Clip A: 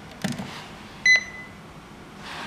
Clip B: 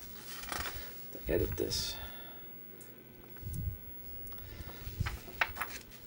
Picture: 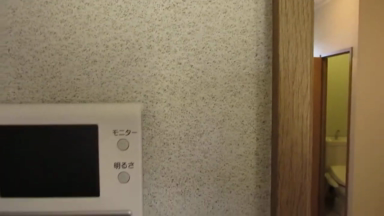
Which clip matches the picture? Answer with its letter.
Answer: A